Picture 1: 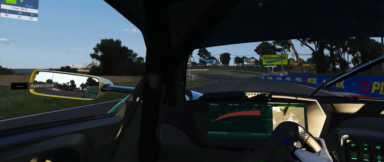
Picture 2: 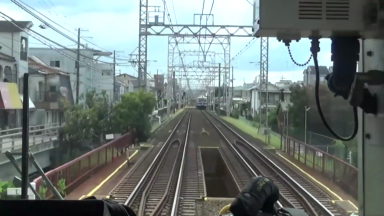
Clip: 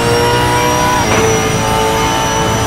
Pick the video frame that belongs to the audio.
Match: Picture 1